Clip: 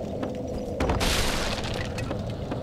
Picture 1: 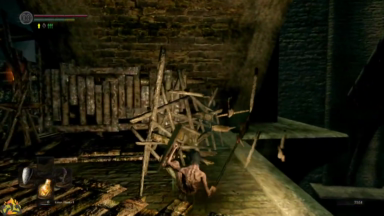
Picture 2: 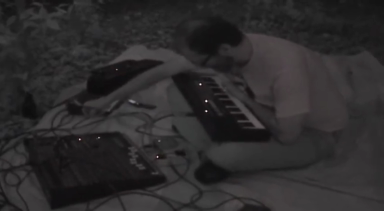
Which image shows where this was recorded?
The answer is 1